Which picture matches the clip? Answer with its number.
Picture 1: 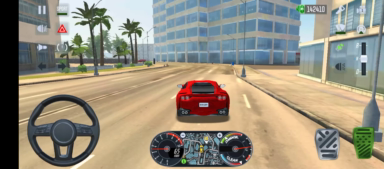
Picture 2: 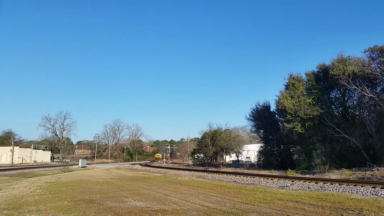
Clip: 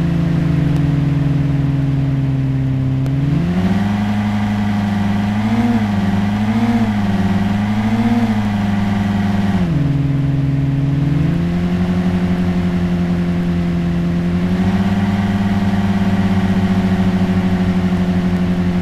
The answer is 1